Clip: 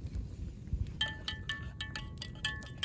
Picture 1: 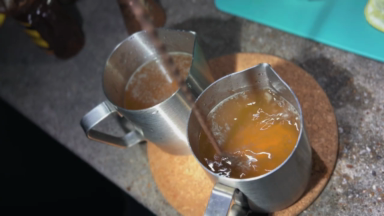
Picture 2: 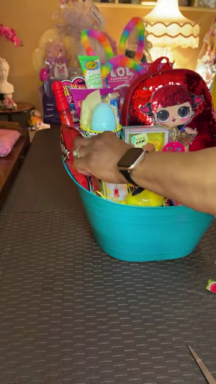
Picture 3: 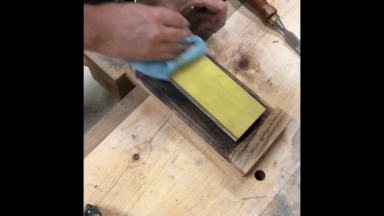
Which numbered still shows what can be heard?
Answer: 1